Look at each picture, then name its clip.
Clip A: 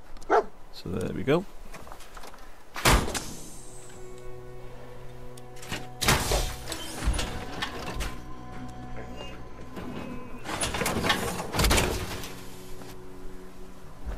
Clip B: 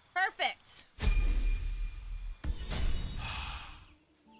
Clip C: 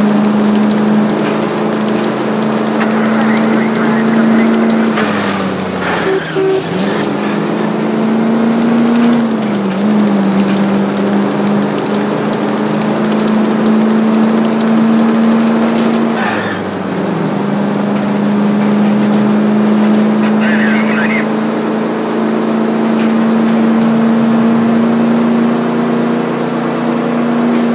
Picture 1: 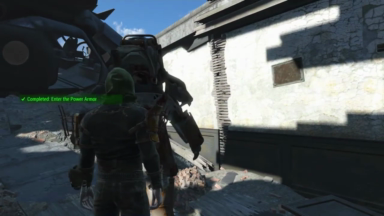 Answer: A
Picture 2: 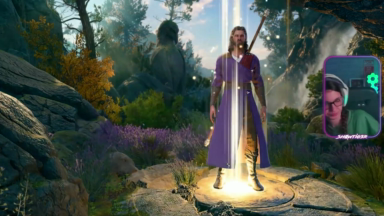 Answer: B